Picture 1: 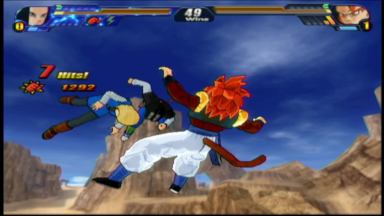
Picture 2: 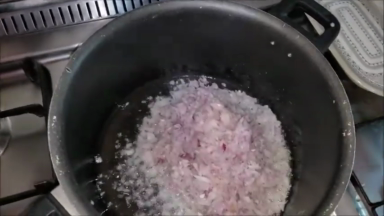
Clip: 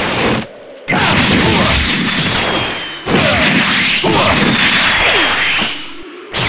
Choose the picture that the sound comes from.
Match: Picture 1